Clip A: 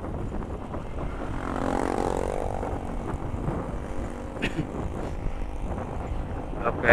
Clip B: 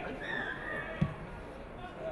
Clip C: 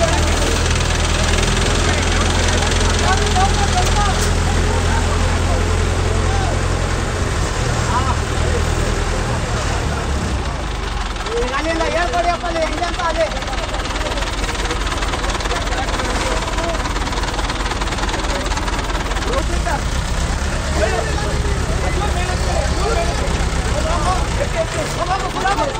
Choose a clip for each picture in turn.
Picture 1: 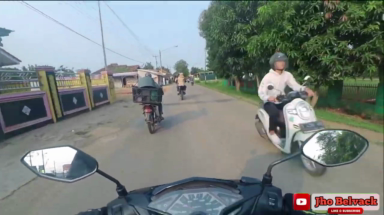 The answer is A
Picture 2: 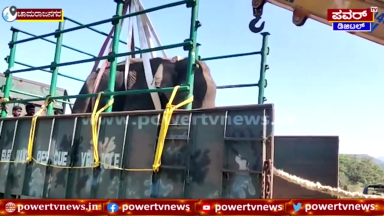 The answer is C